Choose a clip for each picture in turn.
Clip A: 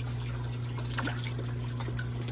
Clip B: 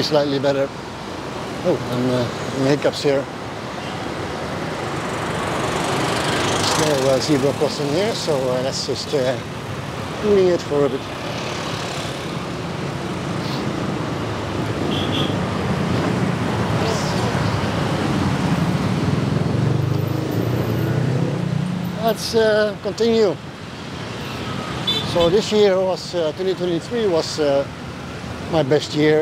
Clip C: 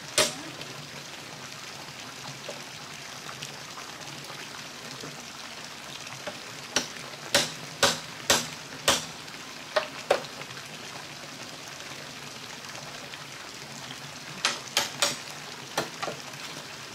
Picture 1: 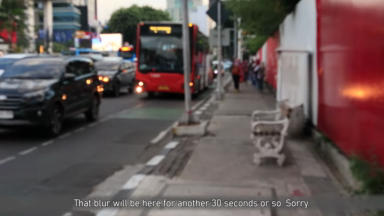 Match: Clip B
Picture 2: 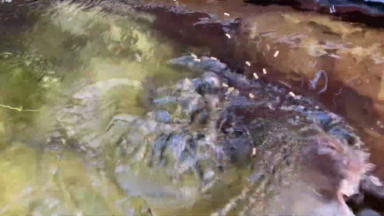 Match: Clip A